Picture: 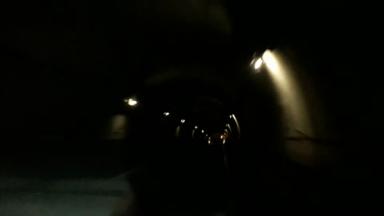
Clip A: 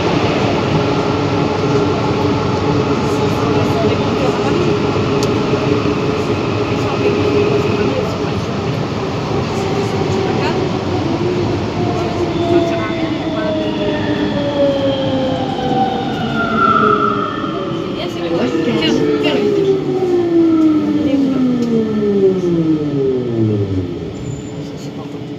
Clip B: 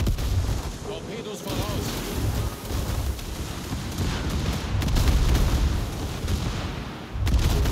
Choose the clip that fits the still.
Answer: A